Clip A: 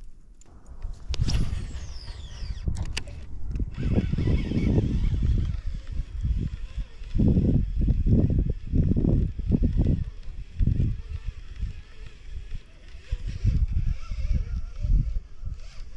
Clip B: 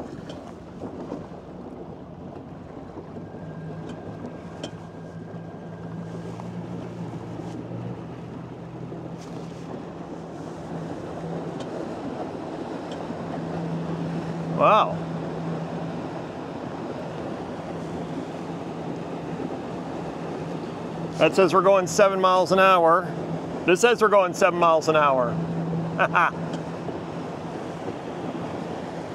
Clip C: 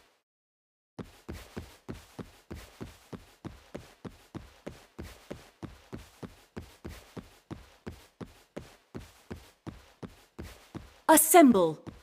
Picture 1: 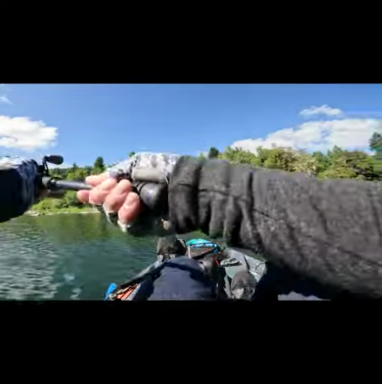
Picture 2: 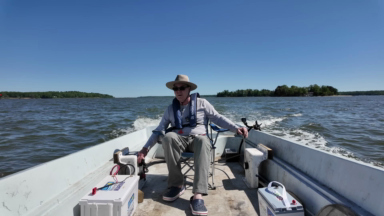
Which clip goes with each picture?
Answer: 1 A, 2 B